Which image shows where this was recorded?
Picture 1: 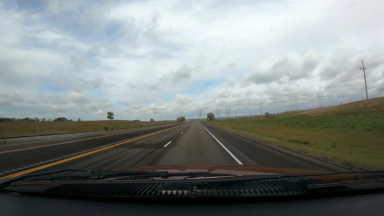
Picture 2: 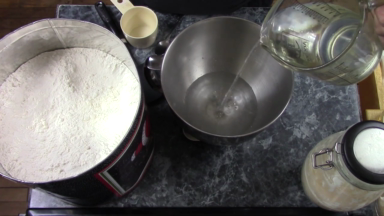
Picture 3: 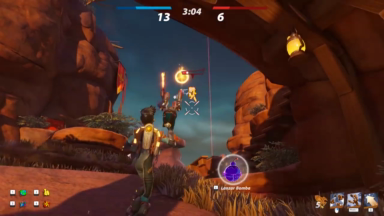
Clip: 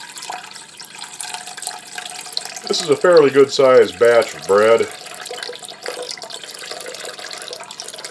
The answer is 2